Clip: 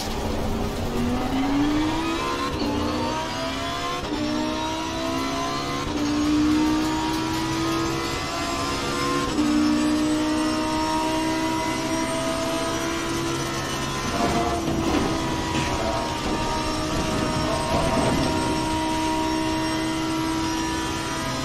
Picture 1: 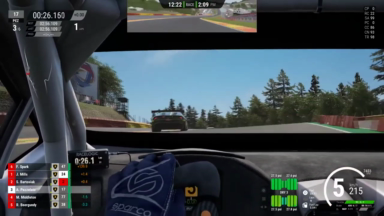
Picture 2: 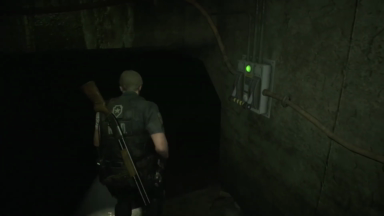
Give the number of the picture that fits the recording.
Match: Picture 1